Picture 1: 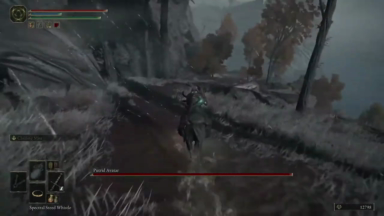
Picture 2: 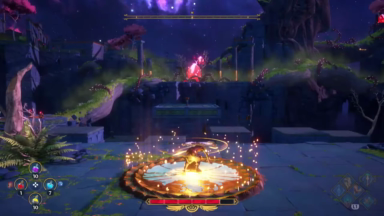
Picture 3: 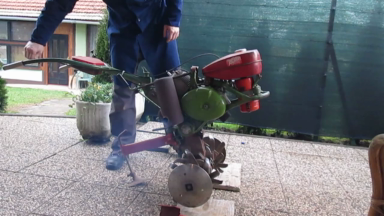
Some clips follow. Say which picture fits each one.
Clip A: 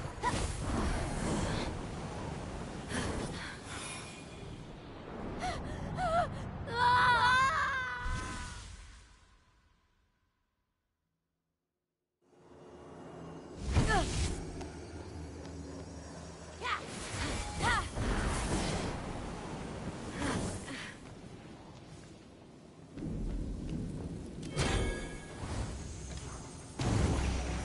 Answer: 2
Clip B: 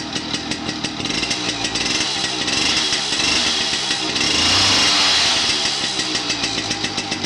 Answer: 3